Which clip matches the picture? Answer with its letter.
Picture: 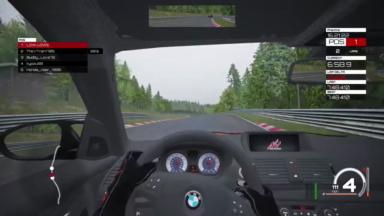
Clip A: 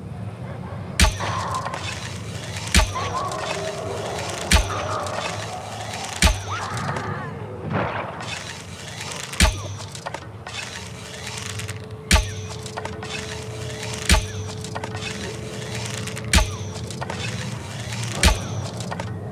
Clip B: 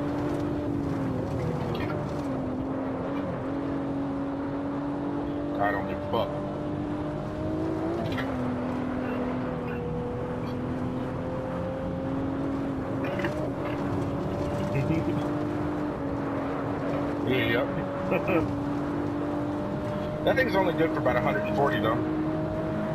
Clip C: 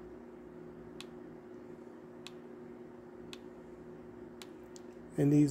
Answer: B